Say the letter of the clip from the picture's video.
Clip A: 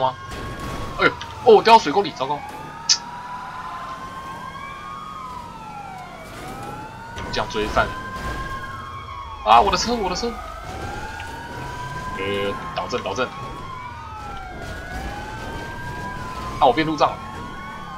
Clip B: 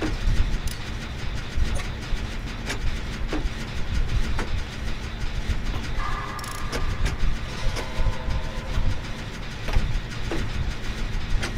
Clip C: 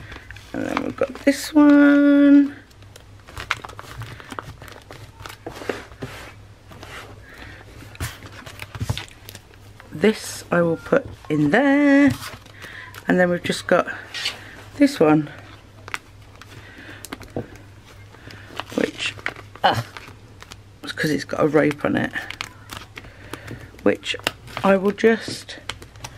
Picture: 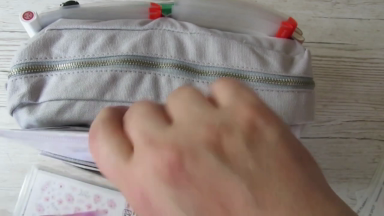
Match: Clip C